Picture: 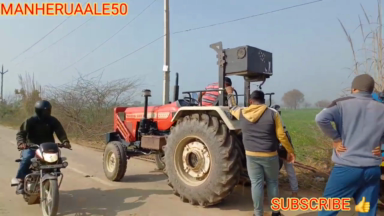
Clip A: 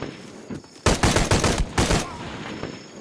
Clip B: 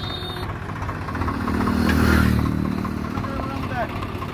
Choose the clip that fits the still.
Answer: B